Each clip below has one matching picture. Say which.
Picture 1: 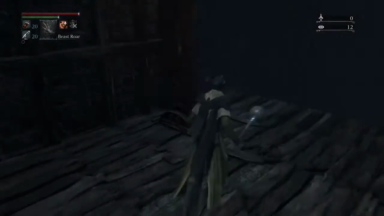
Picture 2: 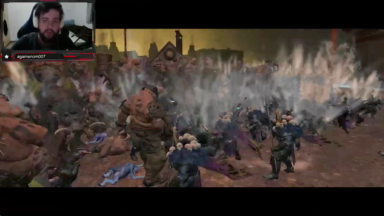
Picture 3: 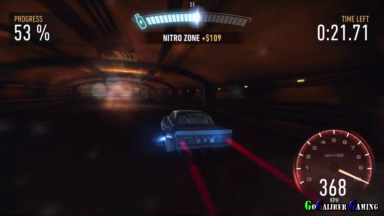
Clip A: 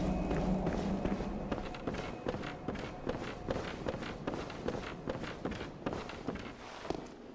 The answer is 1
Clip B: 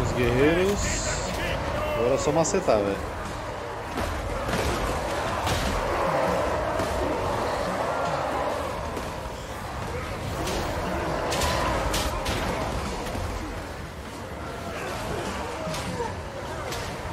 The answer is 2